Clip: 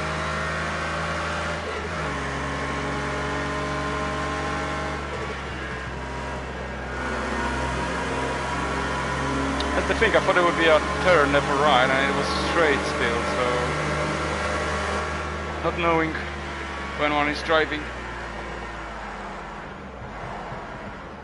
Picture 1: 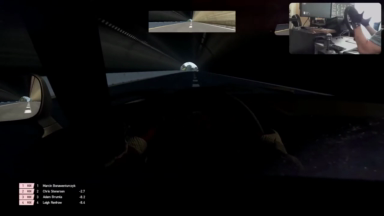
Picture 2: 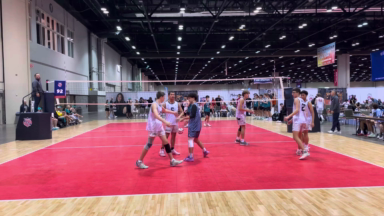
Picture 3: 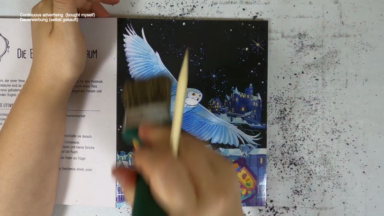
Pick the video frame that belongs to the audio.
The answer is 1